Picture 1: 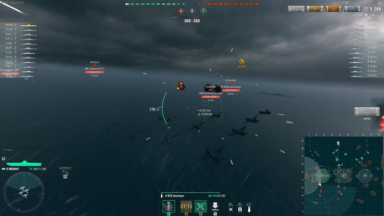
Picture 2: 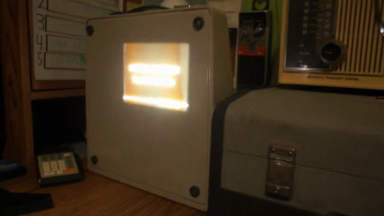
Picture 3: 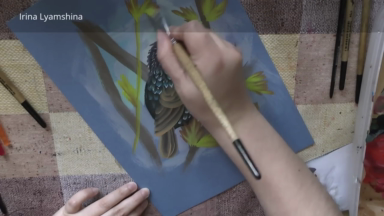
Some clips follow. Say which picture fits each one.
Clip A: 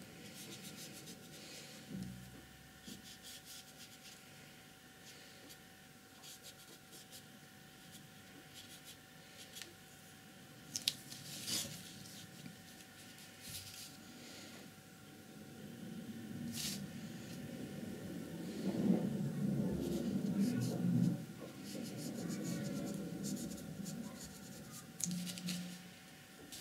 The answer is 3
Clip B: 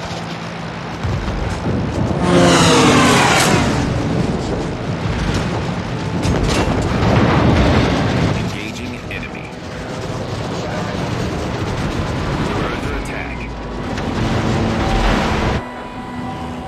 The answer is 1